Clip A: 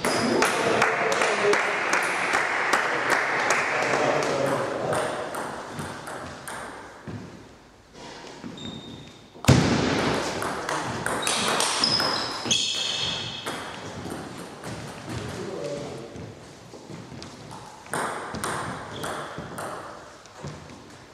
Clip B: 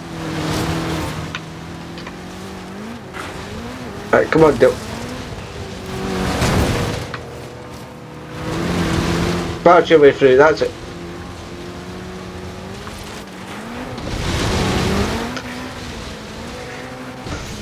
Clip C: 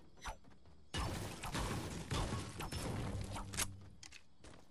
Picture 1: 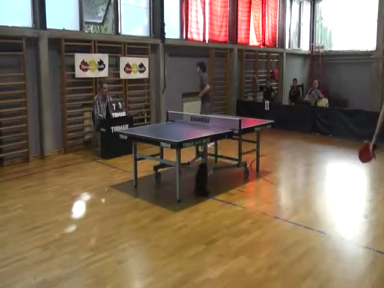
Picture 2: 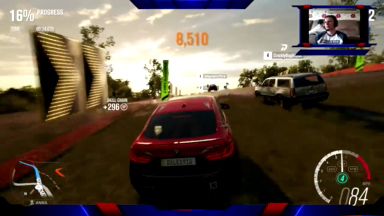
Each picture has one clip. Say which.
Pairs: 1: A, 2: B